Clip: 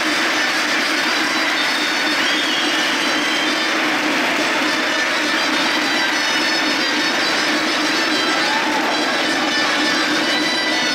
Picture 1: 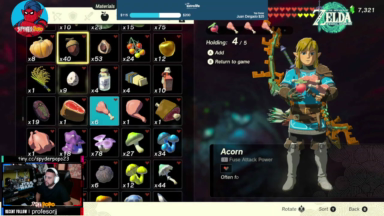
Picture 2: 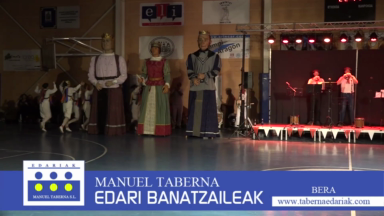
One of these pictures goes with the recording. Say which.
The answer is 2